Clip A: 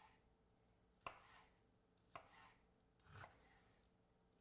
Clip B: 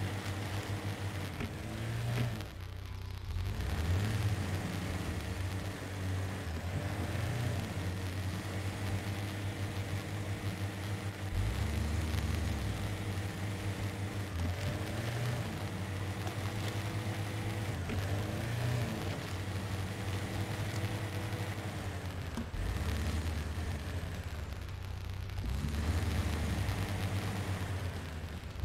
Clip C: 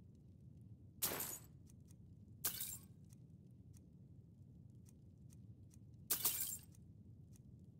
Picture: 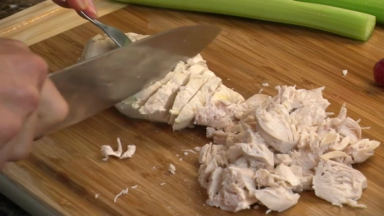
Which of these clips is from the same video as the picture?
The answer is A